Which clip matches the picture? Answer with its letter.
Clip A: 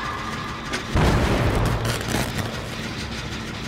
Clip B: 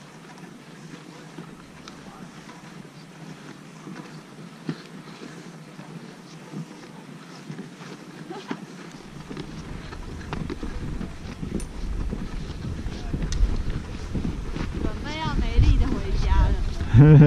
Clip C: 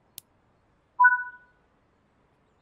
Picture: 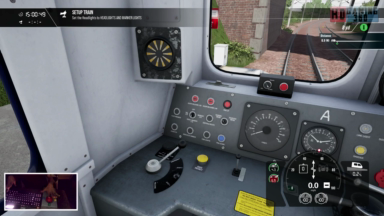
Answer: C